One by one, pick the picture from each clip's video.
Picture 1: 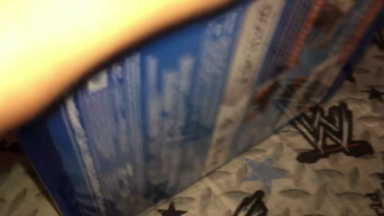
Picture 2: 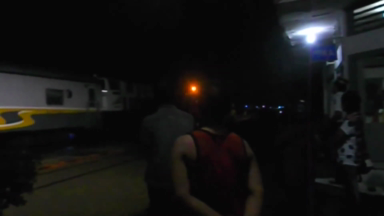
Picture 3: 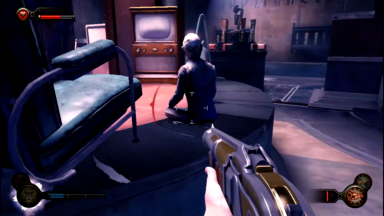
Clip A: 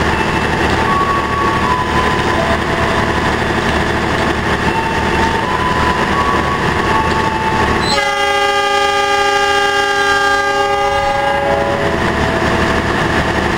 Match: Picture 2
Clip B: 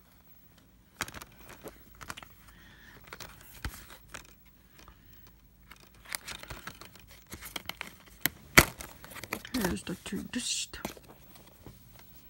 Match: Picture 1